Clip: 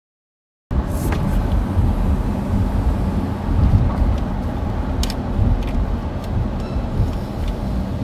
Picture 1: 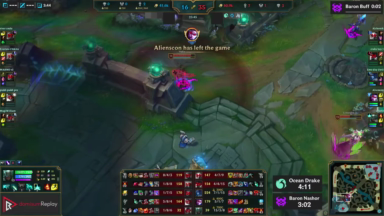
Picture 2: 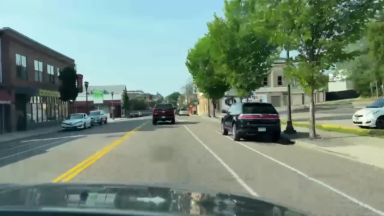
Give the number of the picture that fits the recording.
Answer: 2